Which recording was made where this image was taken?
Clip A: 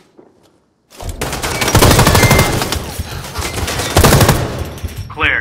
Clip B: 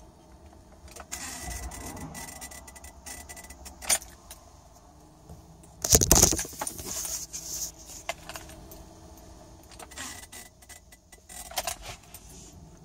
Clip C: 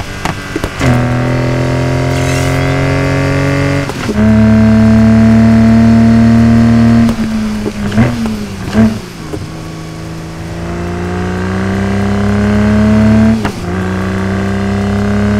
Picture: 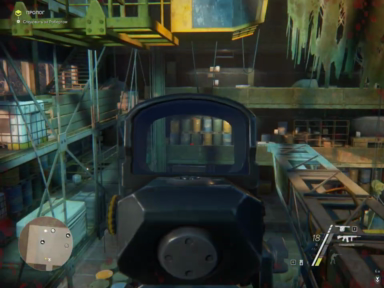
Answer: A